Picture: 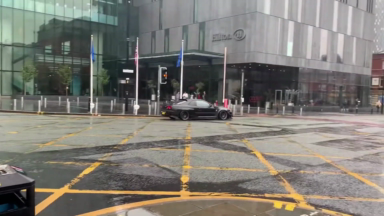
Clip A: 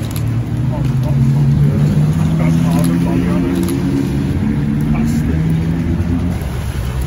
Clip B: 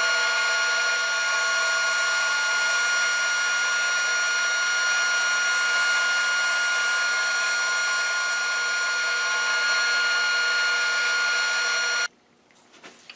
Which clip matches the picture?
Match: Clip A